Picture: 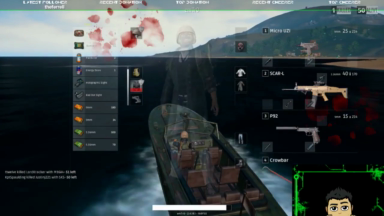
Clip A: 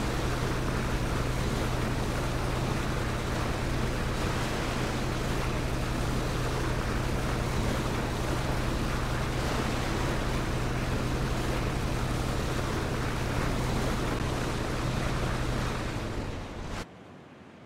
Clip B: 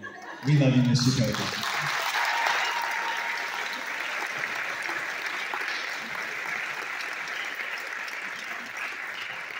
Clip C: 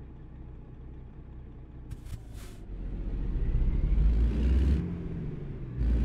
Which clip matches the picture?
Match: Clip A